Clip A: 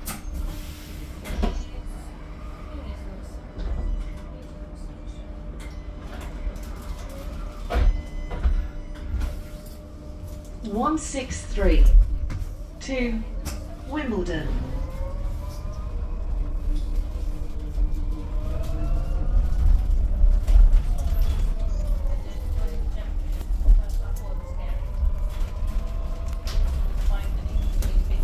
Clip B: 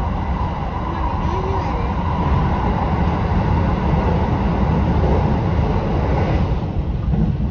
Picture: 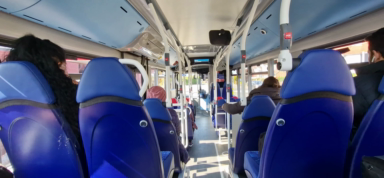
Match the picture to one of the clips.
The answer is A